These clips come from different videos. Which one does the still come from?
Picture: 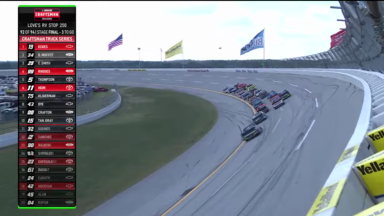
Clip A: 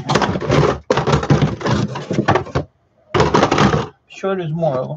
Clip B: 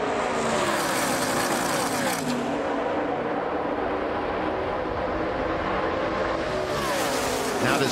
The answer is B